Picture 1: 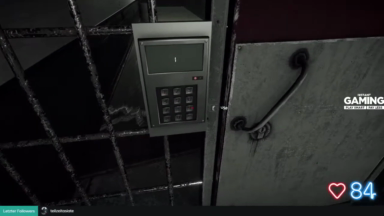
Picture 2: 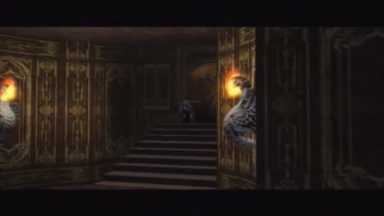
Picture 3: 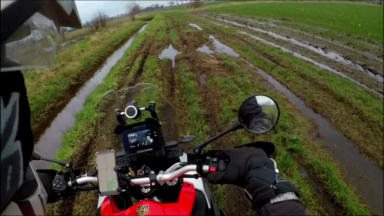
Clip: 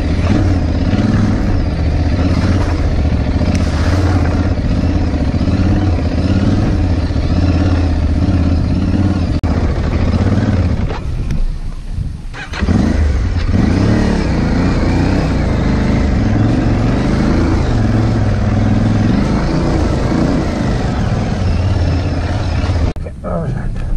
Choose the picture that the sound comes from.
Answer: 3